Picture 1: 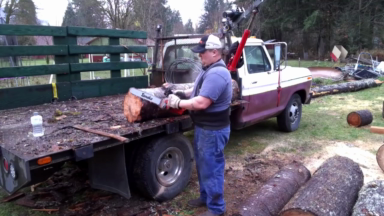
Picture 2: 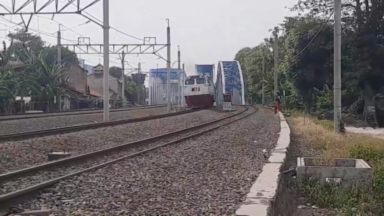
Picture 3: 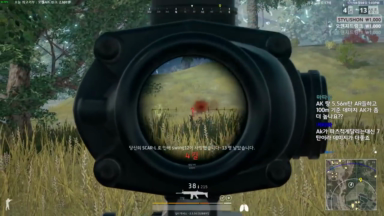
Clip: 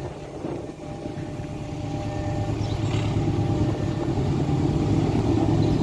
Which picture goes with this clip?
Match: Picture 2